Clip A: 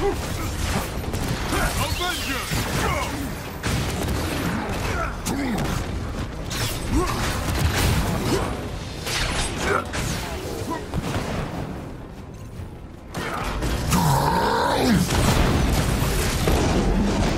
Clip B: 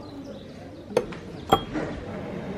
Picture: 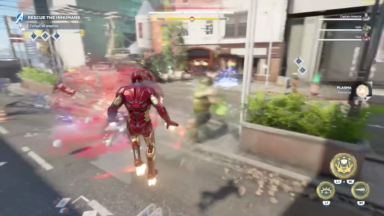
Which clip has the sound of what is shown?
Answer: A